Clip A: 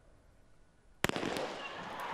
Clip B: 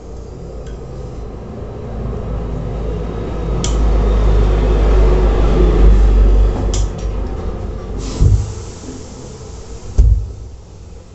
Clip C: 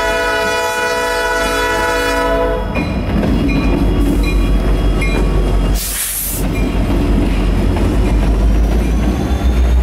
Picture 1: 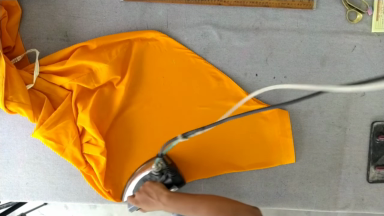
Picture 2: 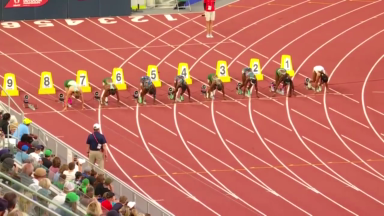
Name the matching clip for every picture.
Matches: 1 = B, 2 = A